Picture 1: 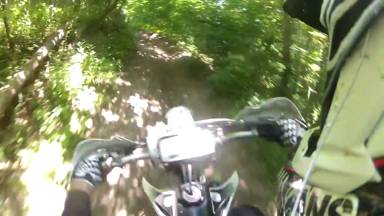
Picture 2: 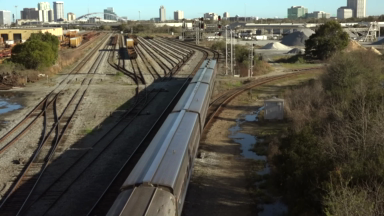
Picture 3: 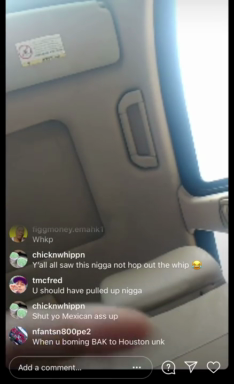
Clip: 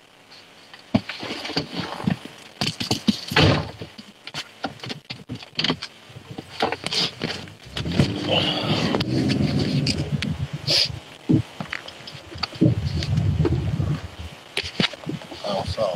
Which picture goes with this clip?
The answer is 3